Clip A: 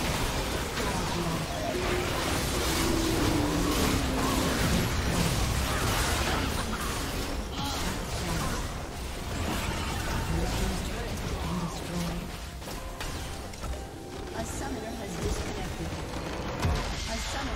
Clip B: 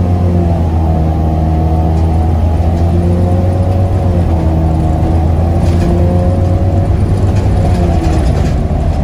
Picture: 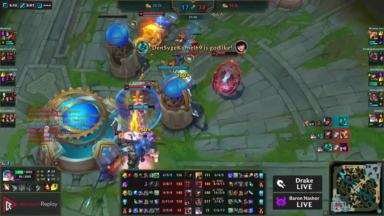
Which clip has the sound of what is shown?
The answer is A